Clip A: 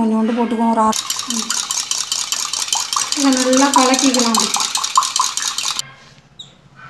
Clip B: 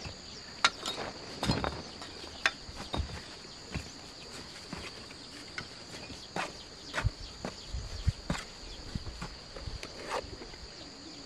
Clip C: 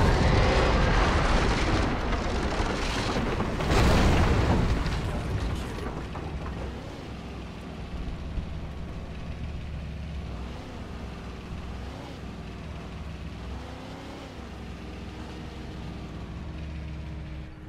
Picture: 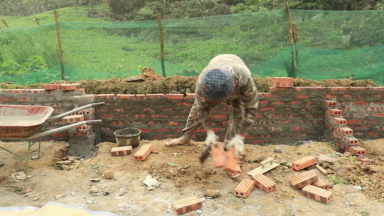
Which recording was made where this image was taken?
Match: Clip B